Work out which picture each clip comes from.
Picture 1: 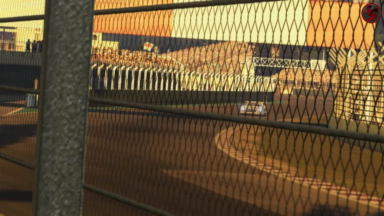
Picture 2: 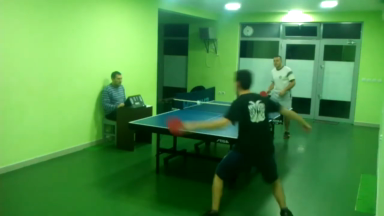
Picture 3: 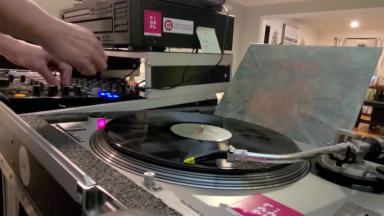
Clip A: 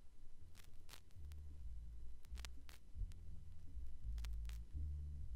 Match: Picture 3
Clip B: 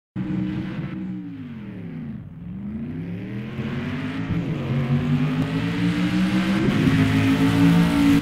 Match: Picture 1